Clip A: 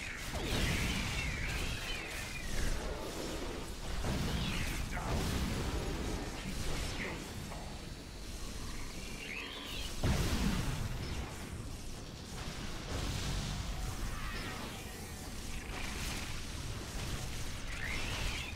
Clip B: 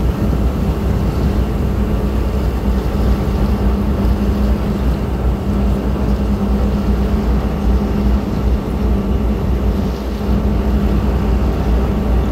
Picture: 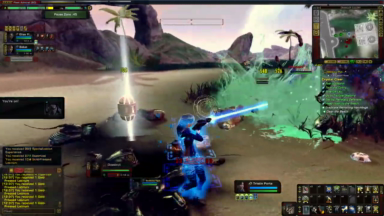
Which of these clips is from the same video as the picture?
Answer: A